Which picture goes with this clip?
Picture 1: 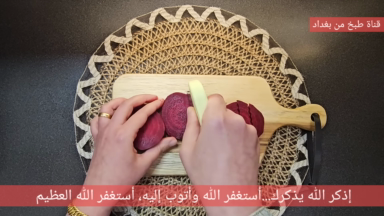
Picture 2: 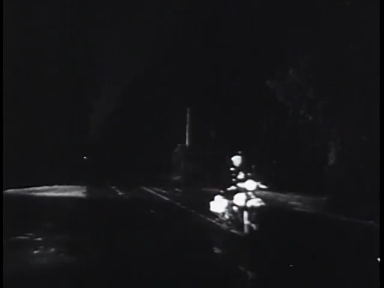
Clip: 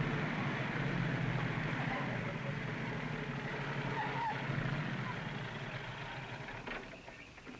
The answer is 2